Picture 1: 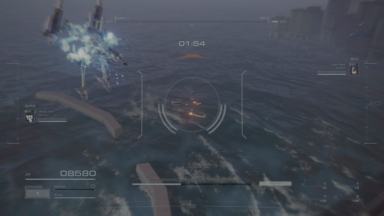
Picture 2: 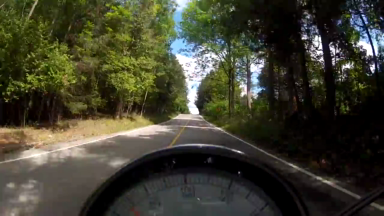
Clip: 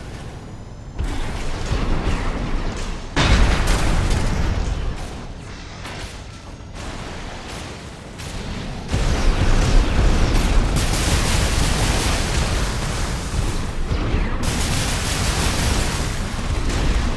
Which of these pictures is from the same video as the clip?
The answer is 1